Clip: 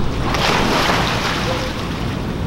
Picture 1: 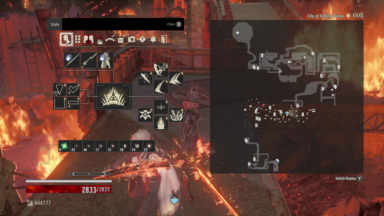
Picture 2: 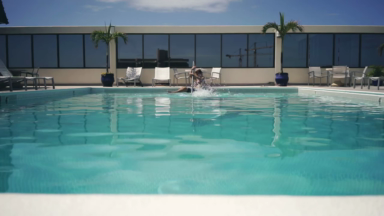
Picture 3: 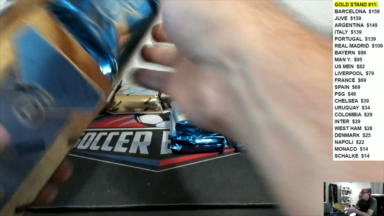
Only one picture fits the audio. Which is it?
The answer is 2